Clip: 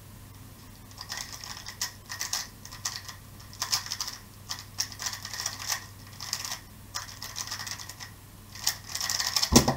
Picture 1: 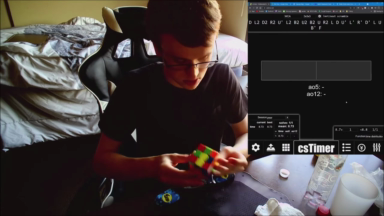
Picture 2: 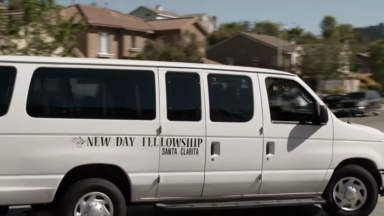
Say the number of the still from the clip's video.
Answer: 1